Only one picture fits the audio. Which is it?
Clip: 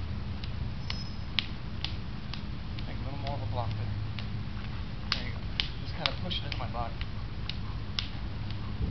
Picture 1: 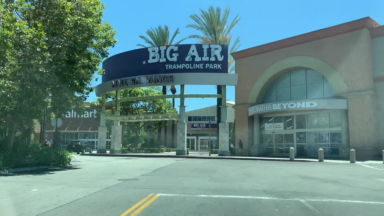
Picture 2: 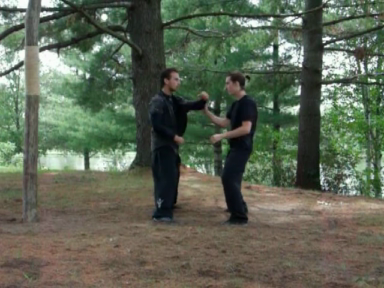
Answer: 2